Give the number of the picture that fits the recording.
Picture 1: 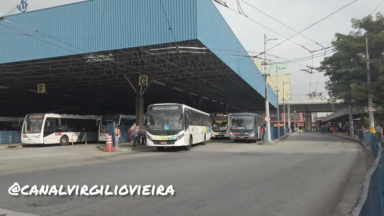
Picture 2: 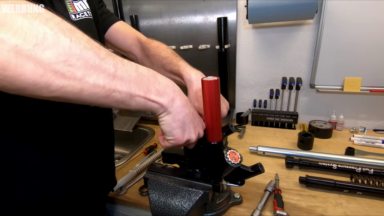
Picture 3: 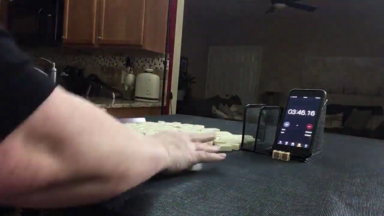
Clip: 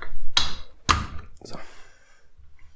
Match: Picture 2